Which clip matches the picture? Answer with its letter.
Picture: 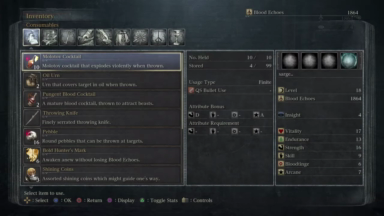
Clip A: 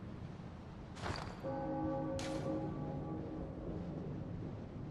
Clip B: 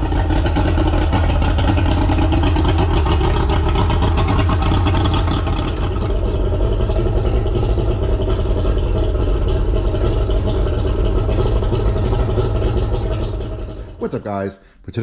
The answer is A